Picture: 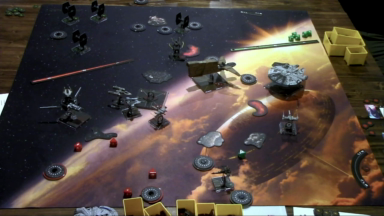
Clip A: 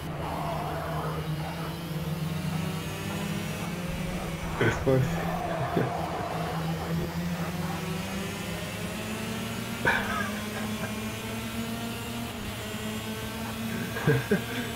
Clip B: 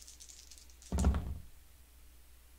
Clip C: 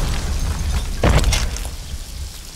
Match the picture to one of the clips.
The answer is B